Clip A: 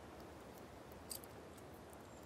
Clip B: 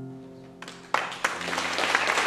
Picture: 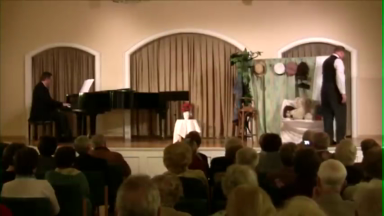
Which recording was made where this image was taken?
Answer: B